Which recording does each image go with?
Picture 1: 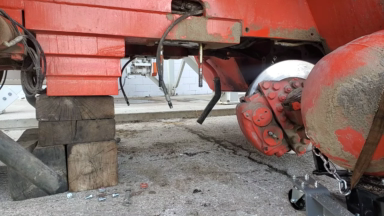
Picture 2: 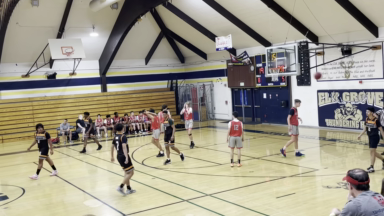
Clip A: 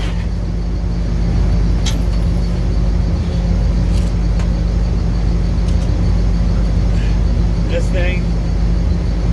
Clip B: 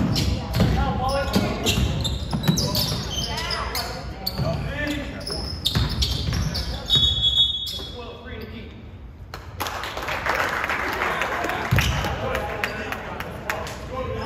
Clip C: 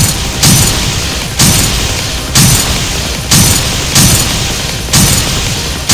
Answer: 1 A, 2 B